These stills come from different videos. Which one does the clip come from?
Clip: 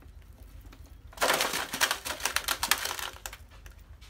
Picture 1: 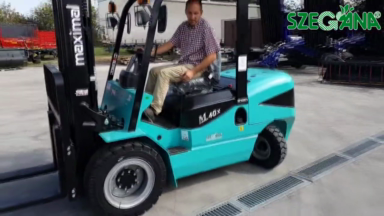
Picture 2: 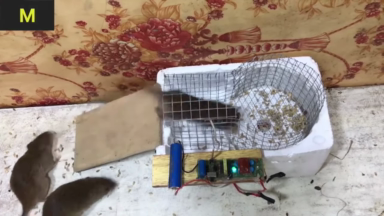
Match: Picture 2